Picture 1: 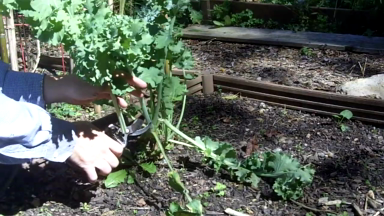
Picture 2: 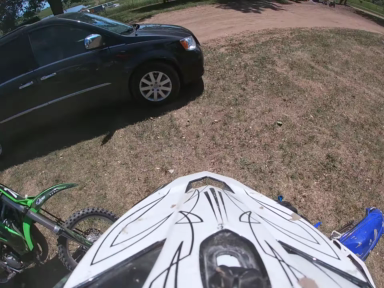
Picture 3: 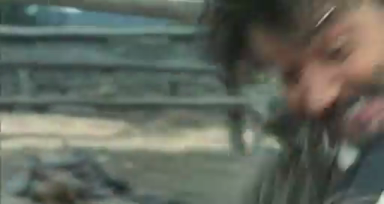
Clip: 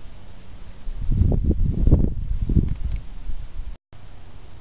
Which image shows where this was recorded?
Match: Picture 1